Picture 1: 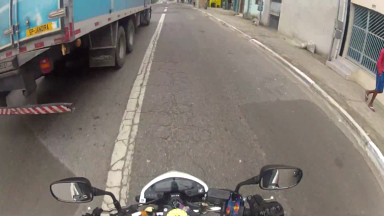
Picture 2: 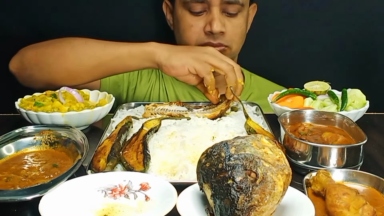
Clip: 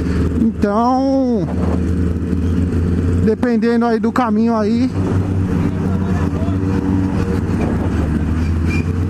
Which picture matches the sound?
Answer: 1